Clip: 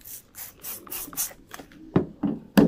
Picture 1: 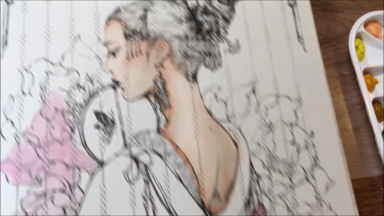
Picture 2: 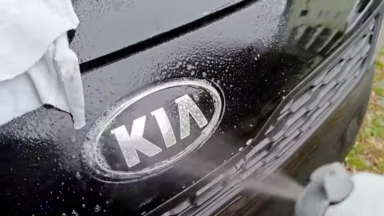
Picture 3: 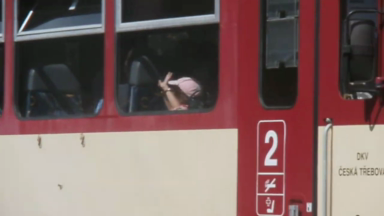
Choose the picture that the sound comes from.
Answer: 2